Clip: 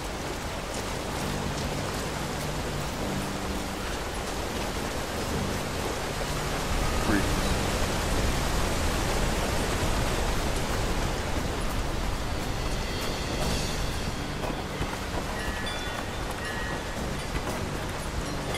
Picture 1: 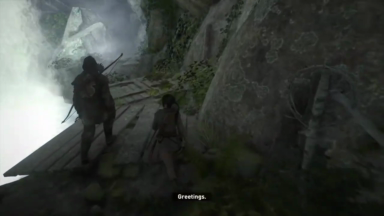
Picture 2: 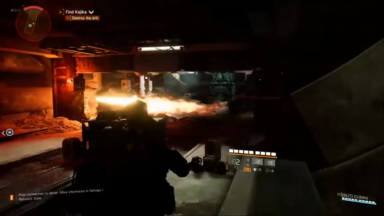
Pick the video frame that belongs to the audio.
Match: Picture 1